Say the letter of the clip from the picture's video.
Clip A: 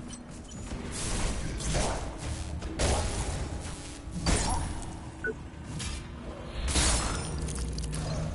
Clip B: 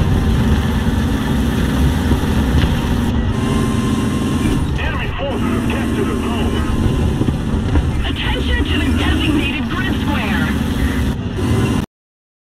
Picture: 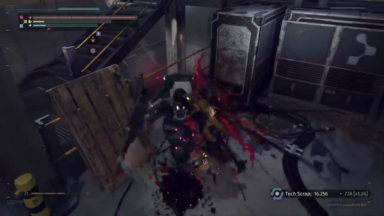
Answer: A